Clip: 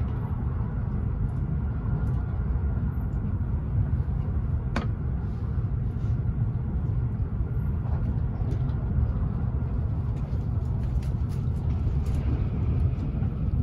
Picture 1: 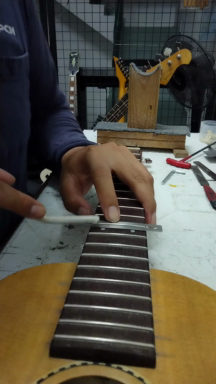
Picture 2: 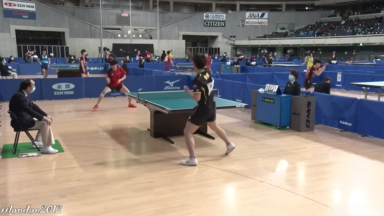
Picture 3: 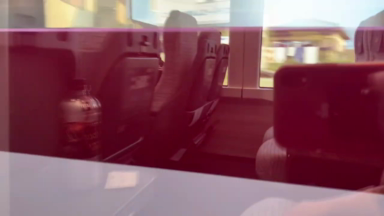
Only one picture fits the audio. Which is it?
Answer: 3